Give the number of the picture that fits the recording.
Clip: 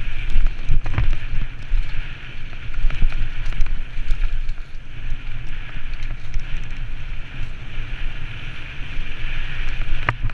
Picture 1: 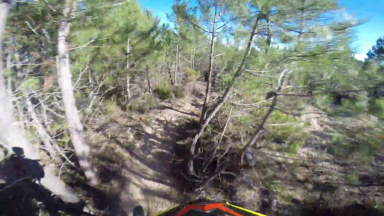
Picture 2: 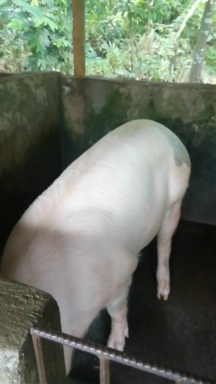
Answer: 1